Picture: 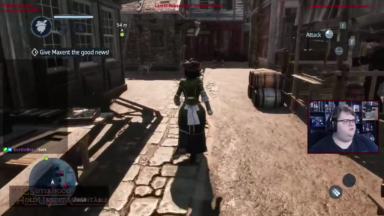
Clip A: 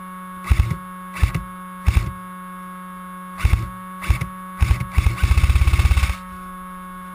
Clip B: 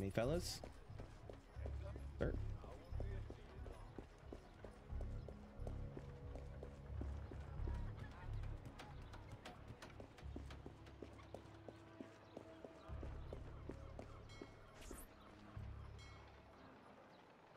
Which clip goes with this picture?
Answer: B